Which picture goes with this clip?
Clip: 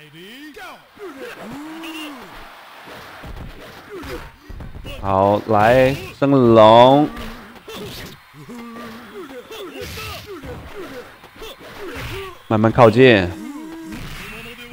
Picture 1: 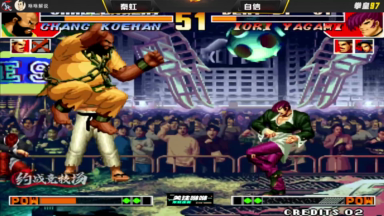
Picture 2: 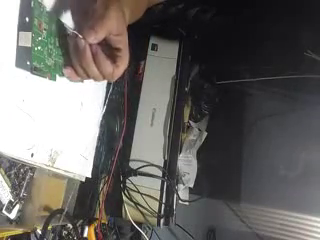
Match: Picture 1